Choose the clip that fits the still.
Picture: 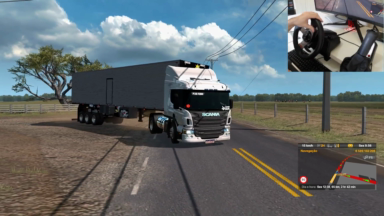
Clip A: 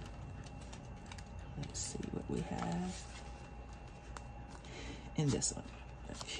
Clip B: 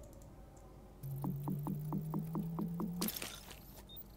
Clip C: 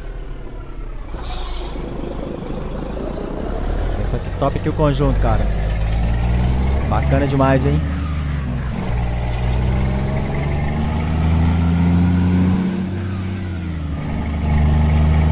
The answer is C